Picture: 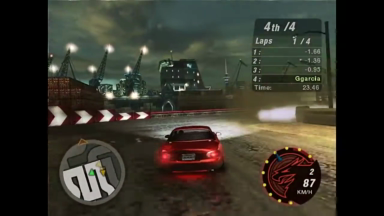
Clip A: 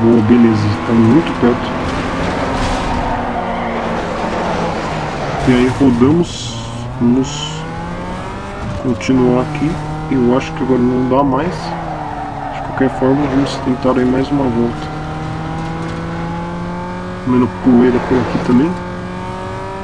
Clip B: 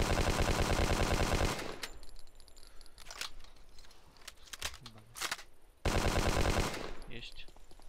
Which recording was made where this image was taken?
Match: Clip A